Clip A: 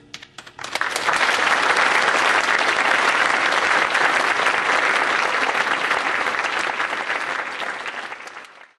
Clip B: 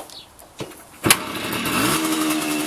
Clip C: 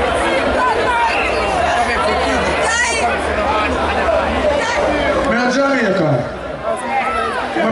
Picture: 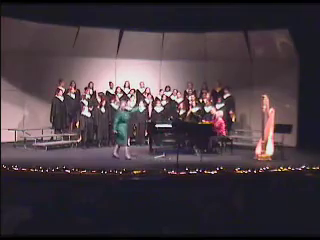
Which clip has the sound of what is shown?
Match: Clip A